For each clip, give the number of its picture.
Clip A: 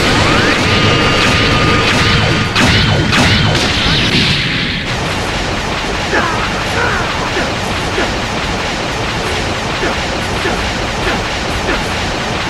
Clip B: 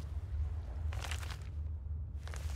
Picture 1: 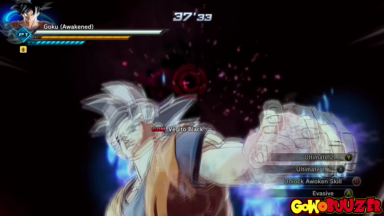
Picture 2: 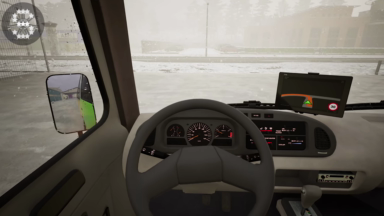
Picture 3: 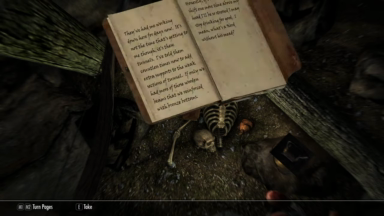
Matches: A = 1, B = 3